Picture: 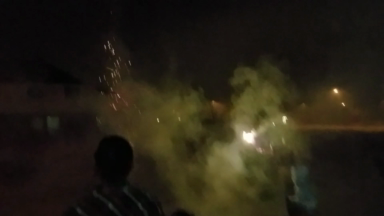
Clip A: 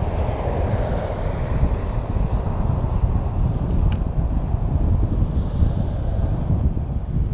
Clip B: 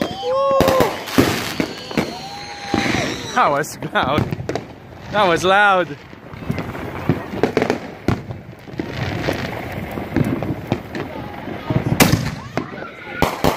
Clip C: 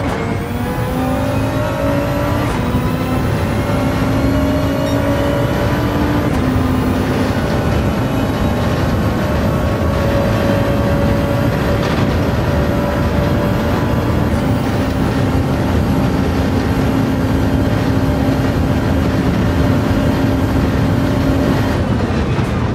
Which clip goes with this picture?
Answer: B